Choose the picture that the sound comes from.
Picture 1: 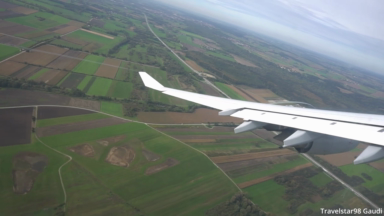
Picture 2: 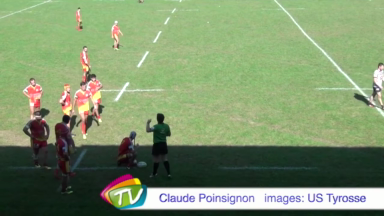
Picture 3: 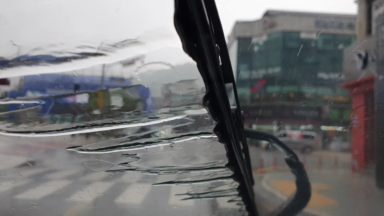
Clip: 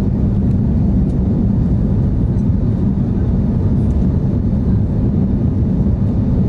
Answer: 1